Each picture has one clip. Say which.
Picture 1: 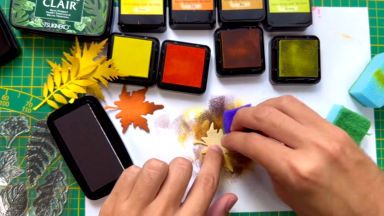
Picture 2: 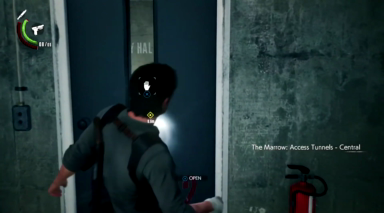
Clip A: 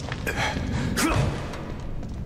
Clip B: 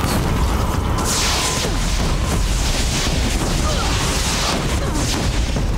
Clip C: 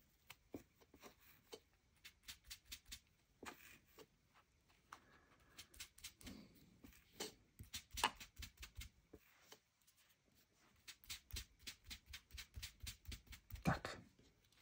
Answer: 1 C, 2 A